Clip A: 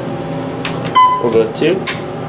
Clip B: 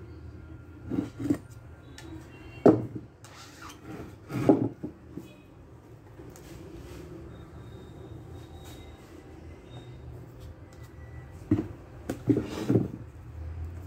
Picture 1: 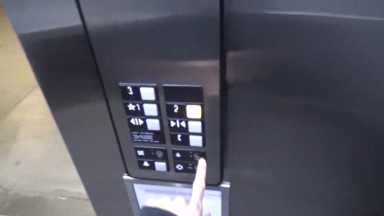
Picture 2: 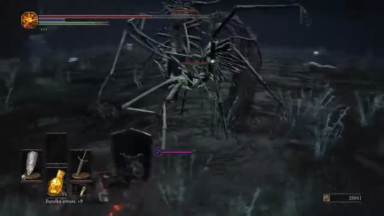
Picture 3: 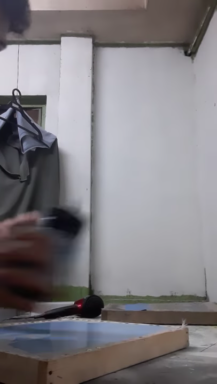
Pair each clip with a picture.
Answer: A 1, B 3